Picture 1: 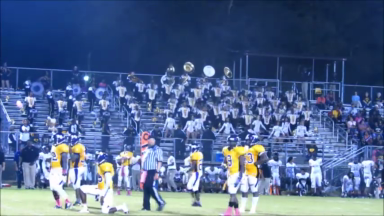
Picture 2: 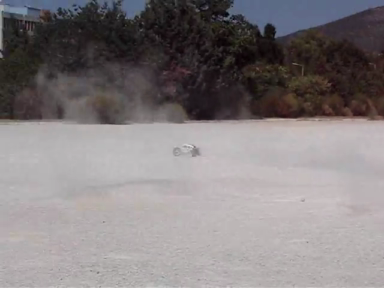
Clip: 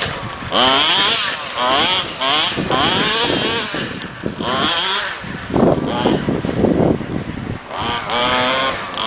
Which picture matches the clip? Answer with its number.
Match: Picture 2